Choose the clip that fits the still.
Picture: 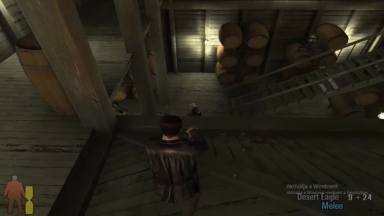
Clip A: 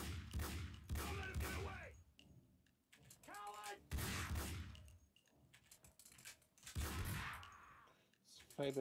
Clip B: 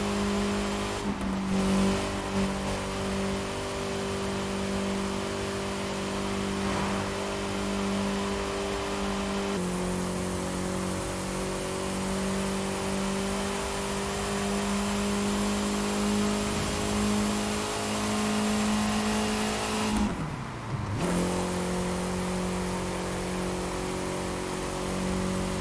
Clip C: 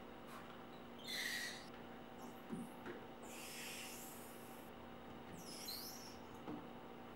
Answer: A